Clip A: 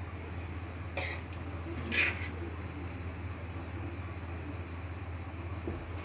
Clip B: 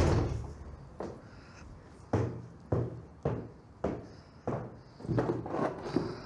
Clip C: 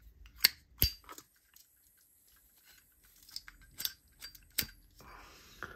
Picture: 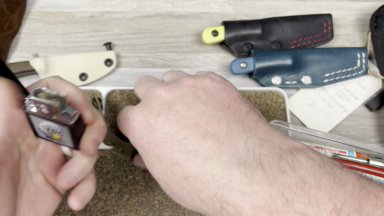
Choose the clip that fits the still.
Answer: C